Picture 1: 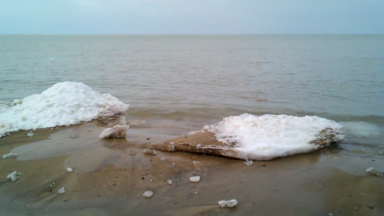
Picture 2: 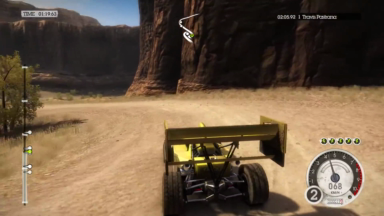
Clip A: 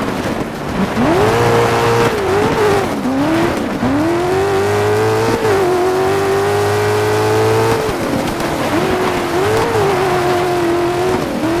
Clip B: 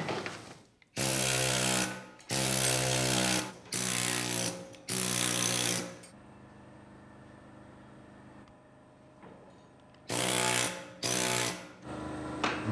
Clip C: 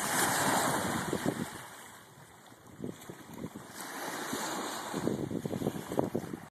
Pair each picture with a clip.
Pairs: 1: C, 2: A